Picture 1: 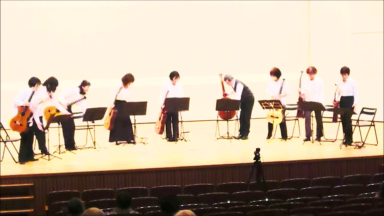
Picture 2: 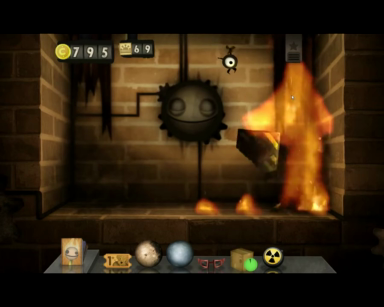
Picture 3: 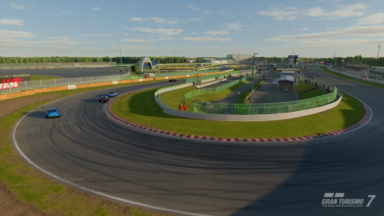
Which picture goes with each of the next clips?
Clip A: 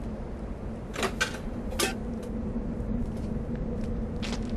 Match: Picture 2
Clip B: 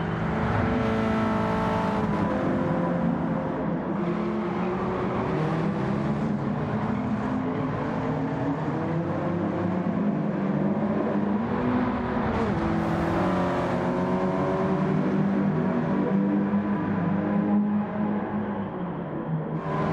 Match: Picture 3